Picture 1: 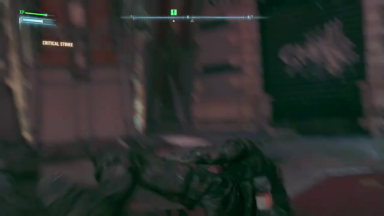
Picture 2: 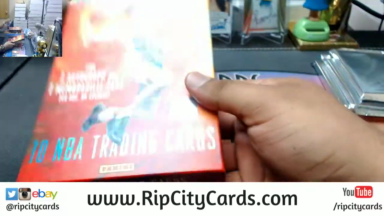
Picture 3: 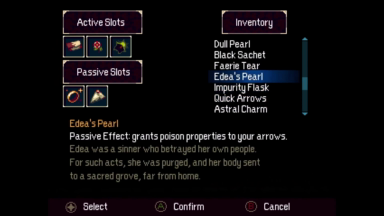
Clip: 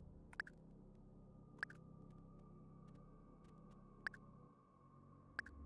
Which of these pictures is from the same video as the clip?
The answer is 3